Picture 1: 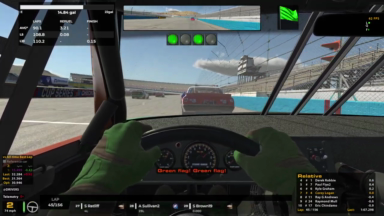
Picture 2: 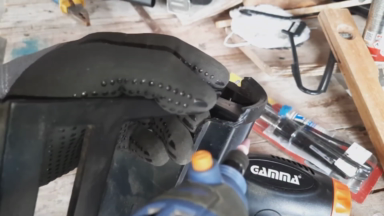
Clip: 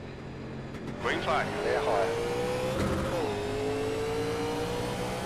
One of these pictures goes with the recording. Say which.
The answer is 1